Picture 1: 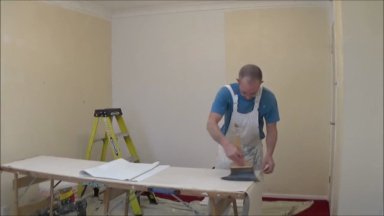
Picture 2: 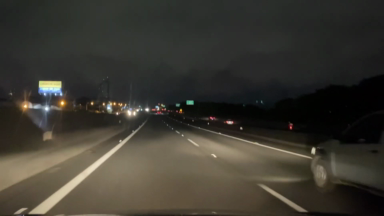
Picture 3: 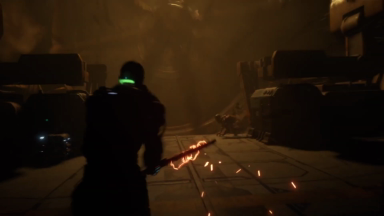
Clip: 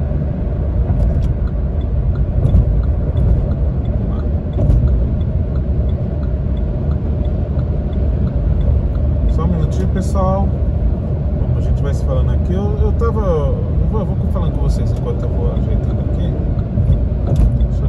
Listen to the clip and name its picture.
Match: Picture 2